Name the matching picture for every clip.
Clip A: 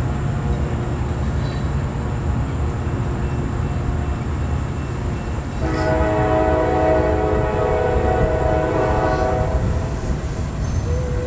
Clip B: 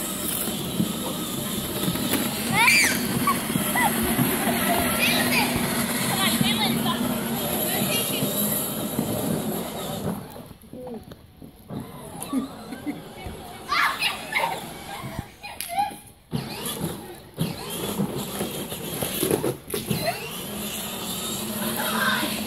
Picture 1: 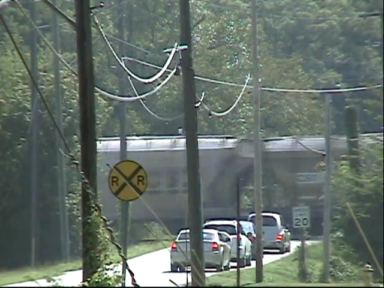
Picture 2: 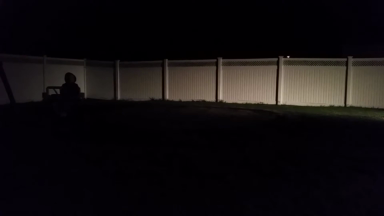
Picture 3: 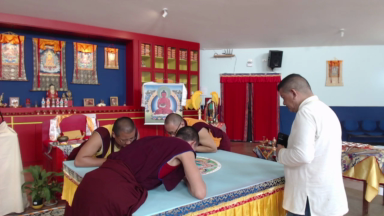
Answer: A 1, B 2